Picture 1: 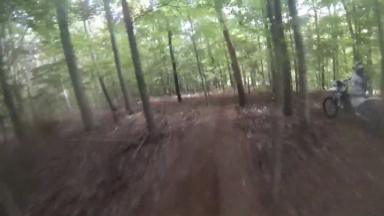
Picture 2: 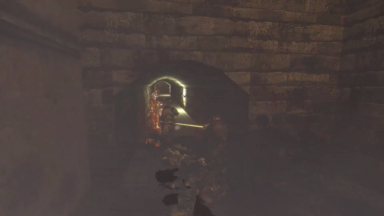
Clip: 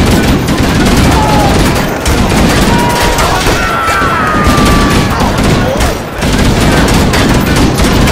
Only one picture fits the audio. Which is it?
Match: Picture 2